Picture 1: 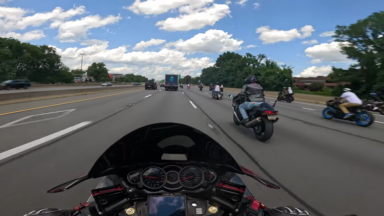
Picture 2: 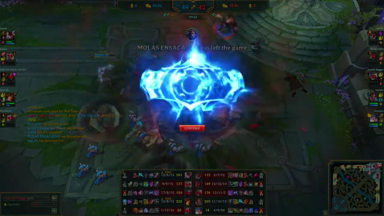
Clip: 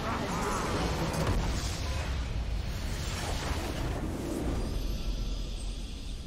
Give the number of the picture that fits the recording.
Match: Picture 2